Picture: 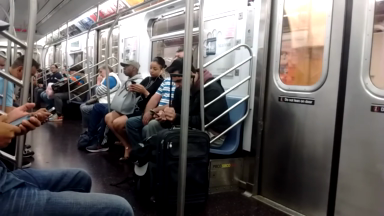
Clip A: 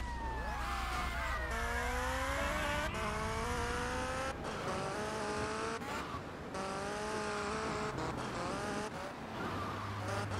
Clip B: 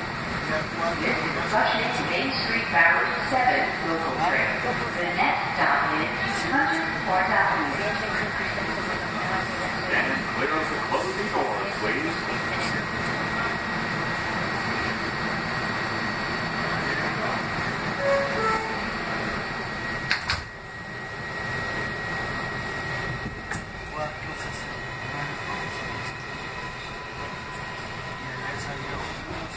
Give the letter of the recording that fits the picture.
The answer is B